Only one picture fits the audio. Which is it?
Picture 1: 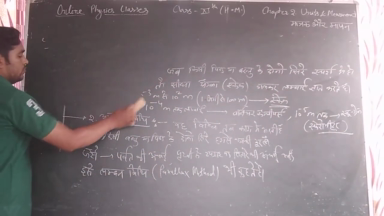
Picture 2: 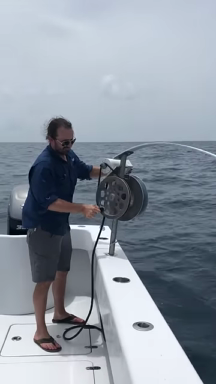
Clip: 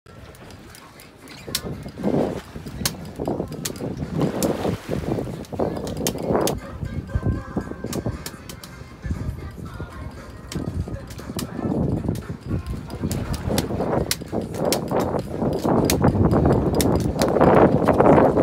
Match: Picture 2